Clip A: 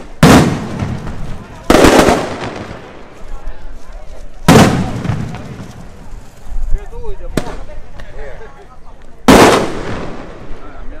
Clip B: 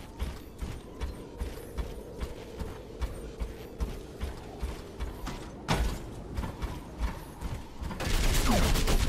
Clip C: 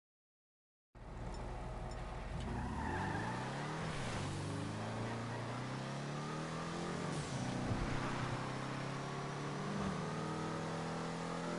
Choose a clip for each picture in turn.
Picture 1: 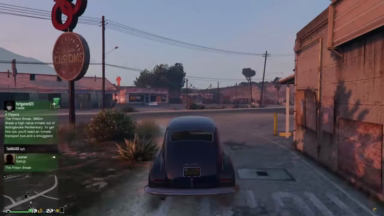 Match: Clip C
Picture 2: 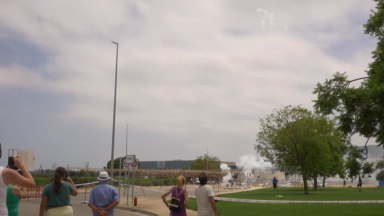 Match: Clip A